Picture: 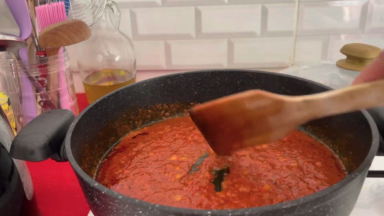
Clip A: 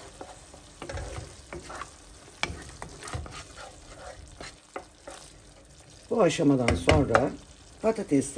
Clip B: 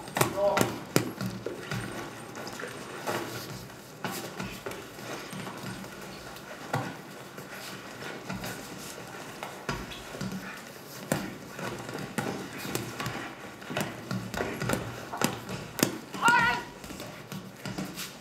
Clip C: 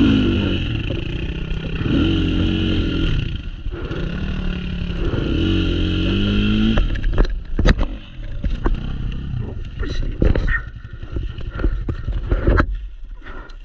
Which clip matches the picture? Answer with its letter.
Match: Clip A